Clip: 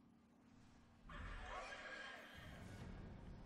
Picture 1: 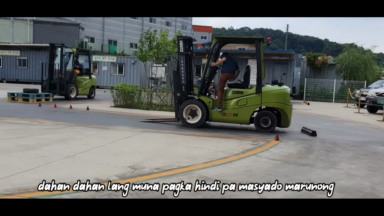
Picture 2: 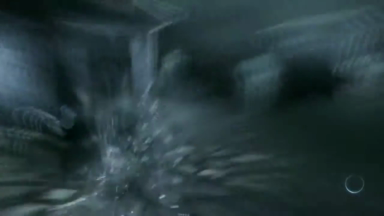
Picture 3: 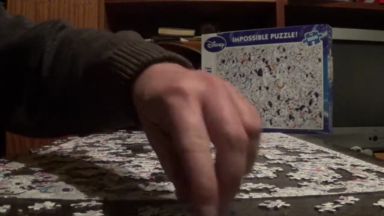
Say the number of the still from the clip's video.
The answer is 2